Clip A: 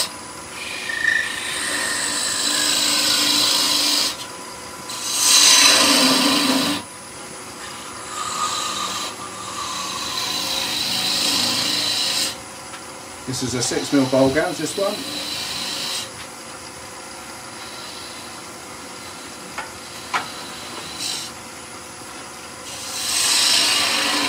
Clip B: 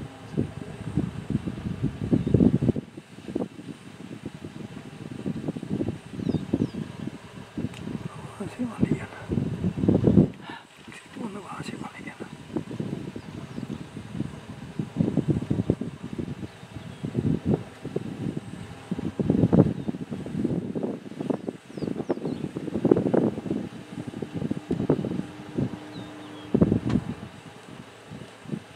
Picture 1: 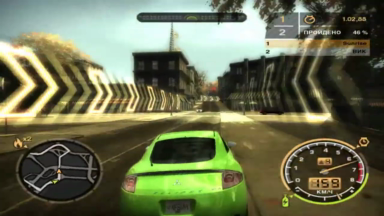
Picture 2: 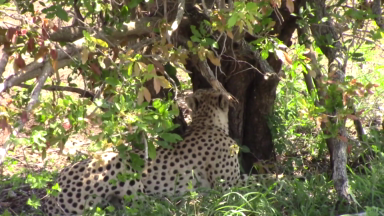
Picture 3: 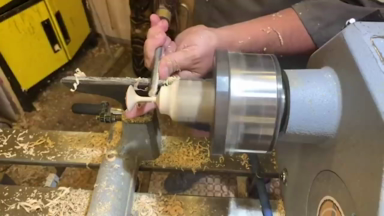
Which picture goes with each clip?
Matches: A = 3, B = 2